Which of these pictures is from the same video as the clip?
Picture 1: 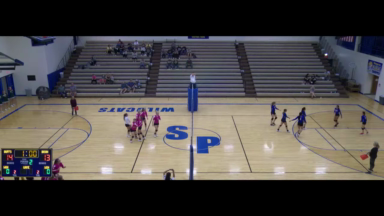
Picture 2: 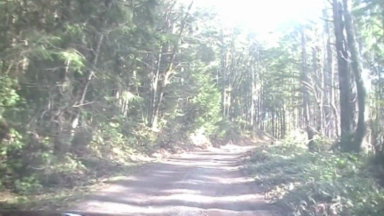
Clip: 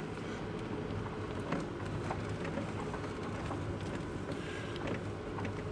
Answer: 2